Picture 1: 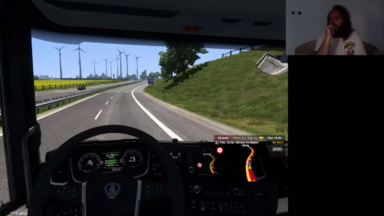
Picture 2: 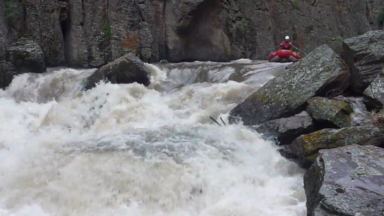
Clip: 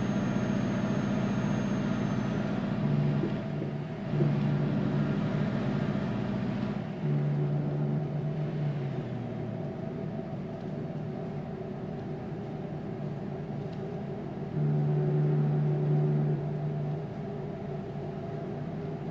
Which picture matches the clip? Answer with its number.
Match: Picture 1